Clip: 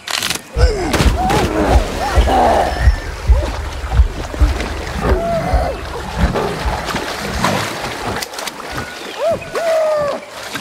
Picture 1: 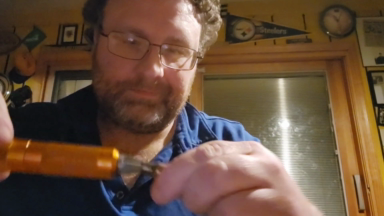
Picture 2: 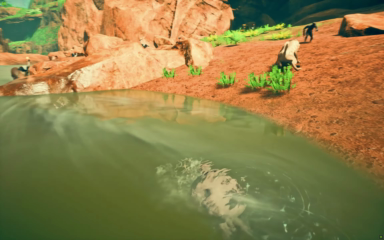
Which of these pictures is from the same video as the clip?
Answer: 2